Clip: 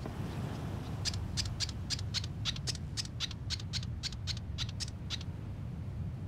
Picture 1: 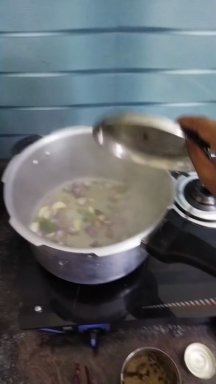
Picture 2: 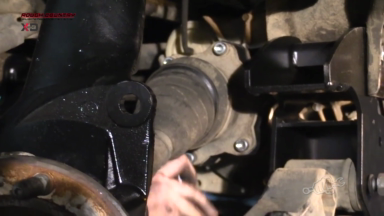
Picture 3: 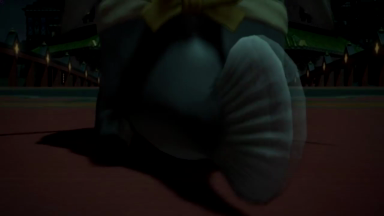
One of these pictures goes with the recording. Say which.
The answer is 3